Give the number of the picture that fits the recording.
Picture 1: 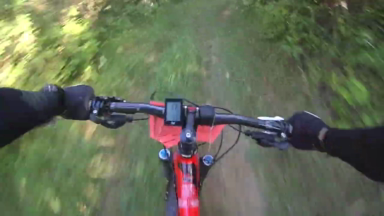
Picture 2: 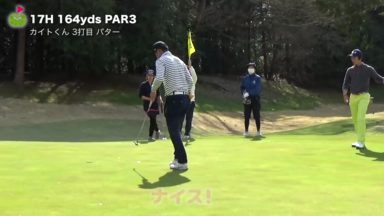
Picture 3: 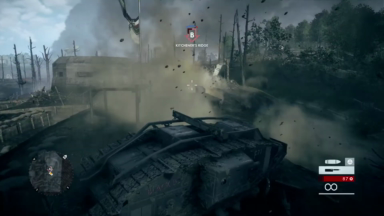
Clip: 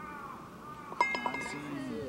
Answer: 2